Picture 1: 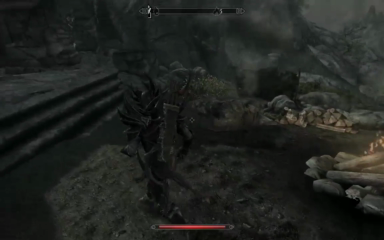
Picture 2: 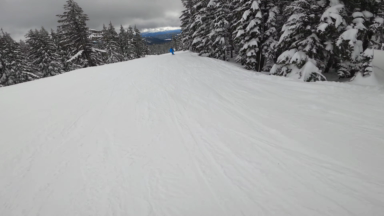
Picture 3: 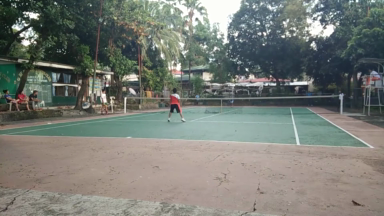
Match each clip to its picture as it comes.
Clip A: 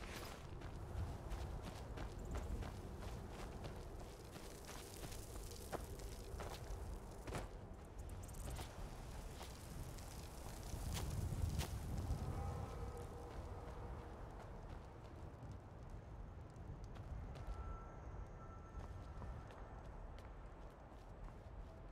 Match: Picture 1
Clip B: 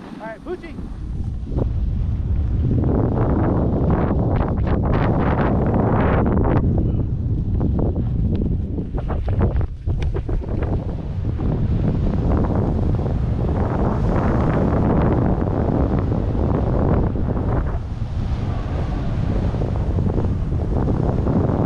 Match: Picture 2